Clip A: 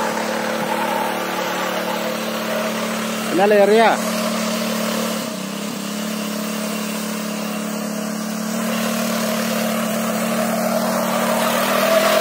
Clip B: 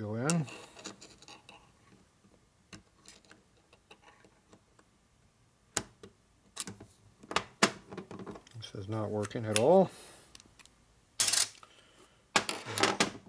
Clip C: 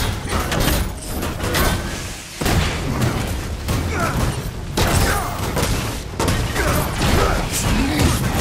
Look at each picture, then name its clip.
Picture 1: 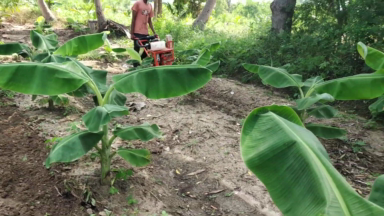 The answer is A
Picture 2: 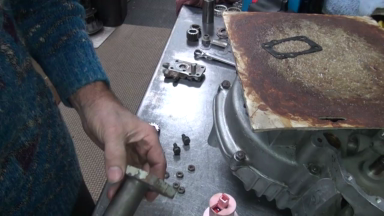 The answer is B